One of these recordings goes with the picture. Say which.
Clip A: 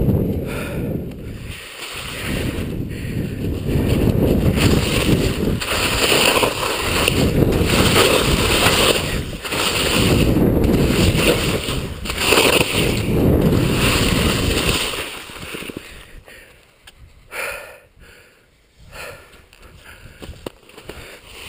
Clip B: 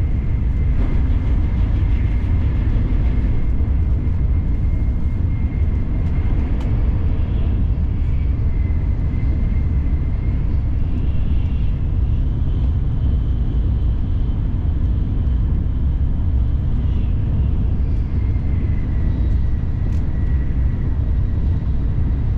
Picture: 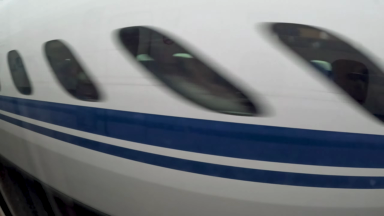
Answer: B